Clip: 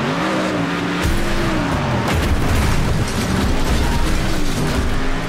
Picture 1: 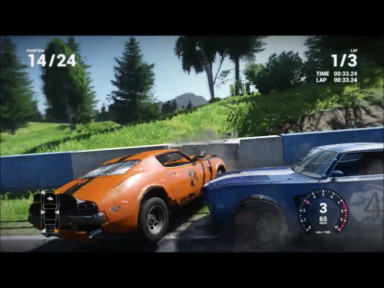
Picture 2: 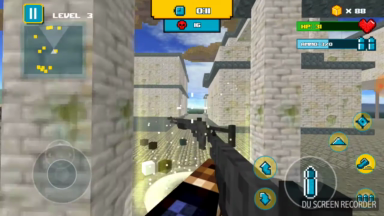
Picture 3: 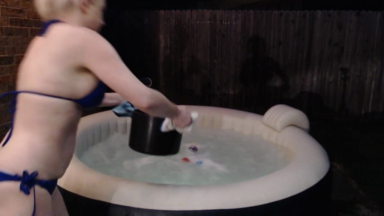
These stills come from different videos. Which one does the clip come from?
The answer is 1